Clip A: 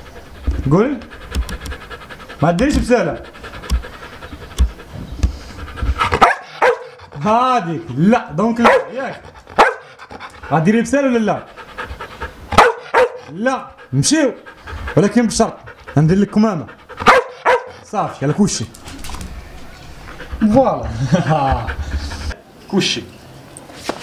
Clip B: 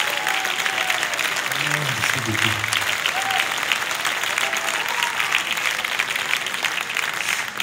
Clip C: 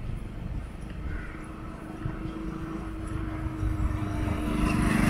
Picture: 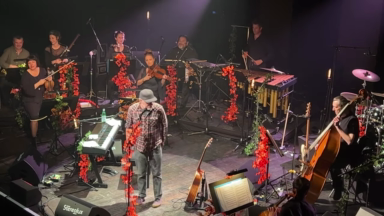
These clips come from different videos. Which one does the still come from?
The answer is B